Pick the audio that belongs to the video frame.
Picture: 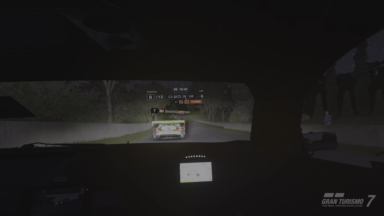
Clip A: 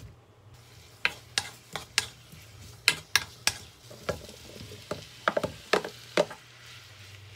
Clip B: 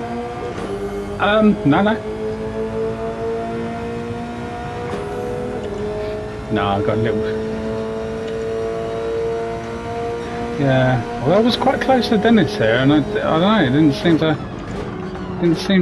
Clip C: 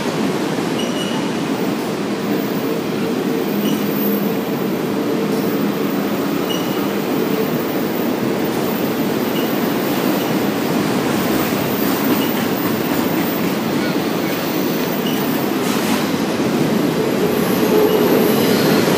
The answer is B